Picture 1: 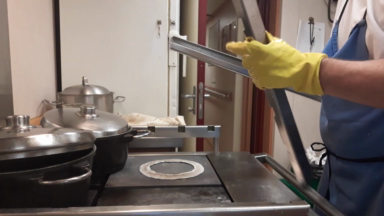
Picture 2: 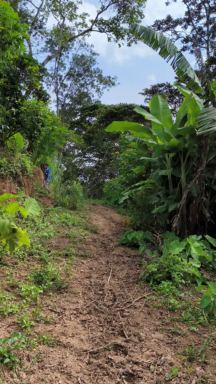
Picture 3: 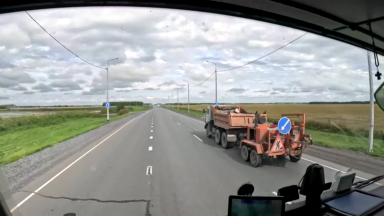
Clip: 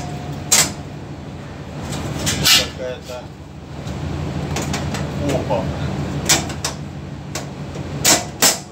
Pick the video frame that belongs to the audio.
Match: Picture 1